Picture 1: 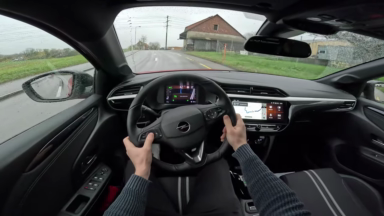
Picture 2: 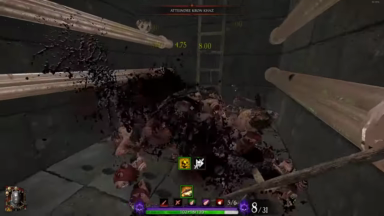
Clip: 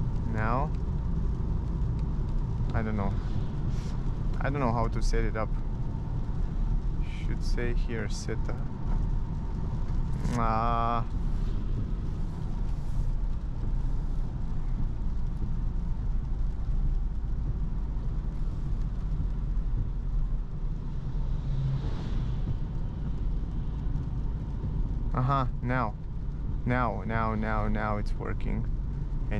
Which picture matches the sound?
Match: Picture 1